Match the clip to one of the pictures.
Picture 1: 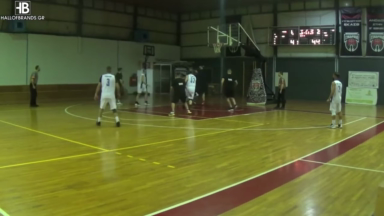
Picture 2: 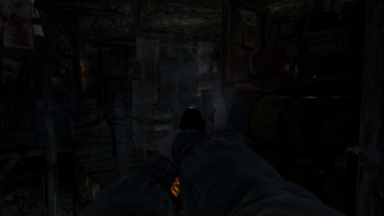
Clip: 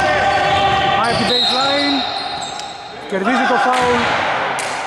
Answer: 1